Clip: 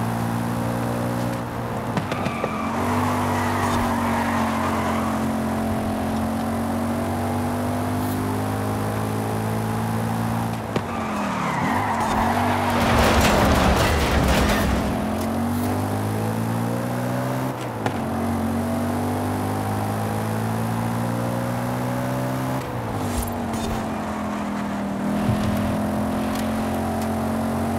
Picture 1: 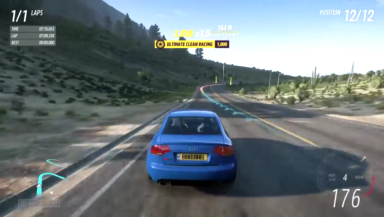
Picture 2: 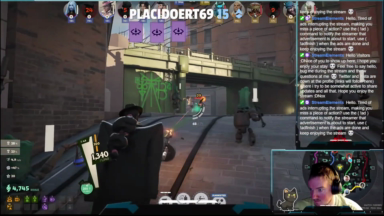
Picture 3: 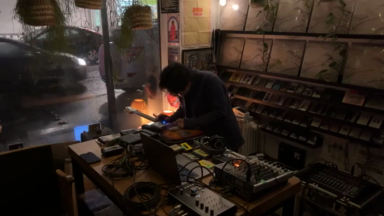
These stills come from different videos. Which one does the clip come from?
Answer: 1